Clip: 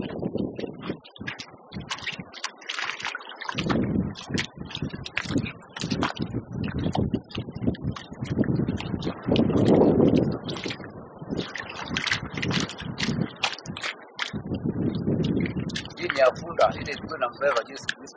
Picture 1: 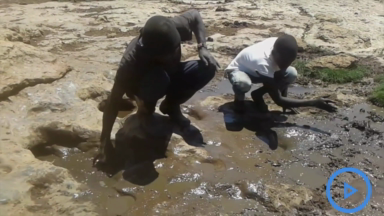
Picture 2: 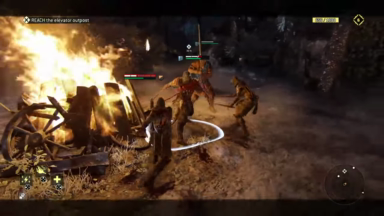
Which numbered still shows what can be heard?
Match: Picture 1